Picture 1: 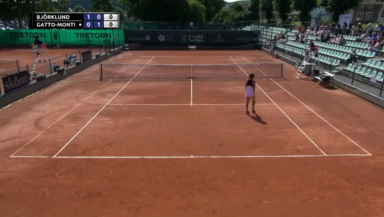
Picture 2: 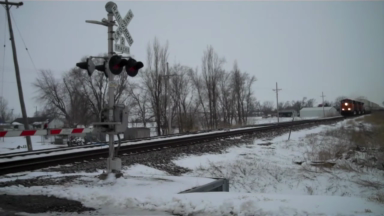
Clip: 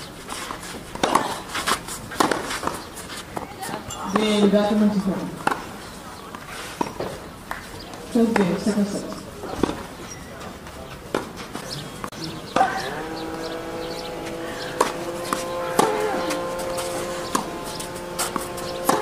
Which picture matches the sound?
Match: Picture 1